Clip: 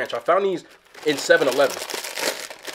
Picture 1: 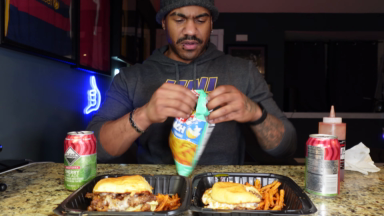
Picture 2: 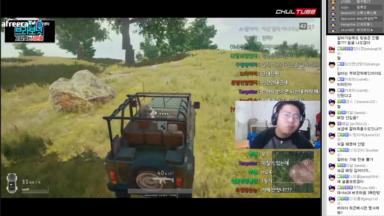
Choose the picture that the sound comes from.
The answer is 1